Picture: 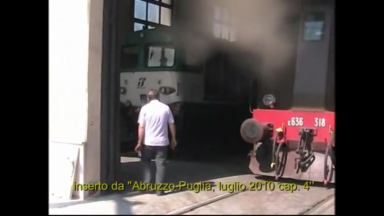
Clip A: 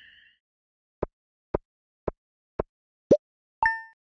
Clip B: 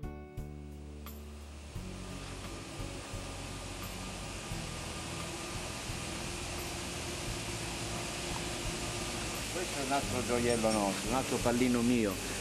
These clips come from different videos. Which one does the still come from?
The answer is B